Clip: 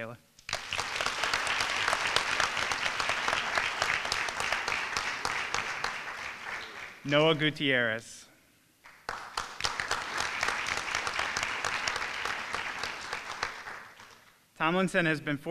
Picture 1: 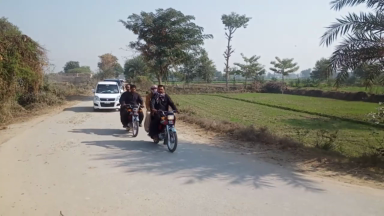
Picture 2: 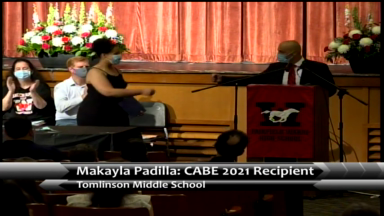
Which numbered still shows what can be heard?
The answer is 2